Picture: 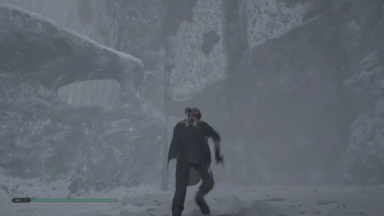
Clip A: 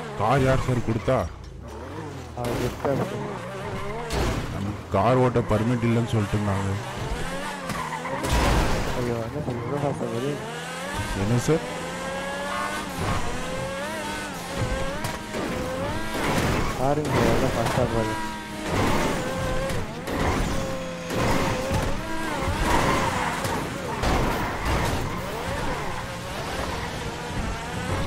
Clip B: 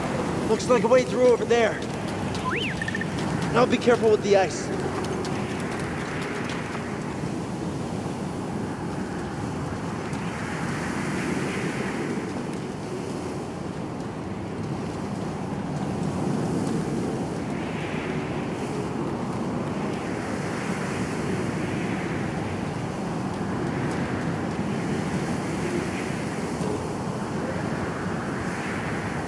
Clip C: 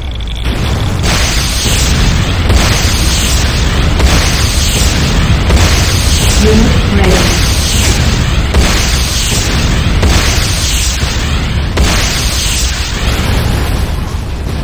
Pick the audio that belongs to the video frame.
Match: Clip B